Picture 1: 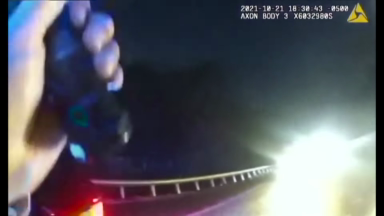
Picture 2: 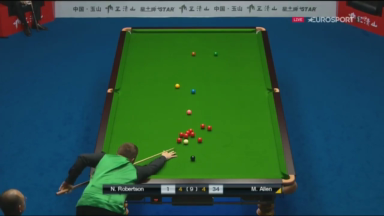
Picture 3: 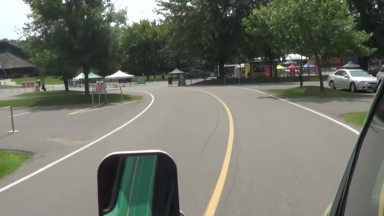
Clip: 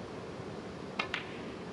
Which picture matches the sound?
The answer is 2